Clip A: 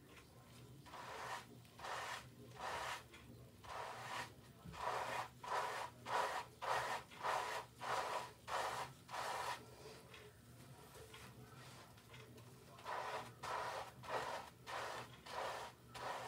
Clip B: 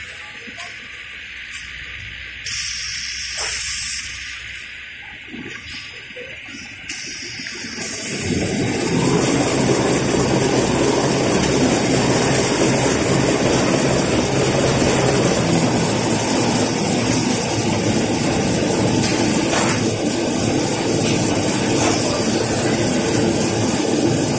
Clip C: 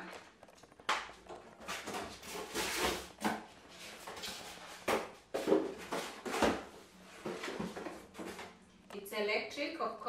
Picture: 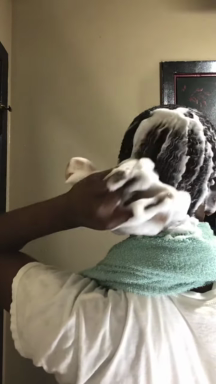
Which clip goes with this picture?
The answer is A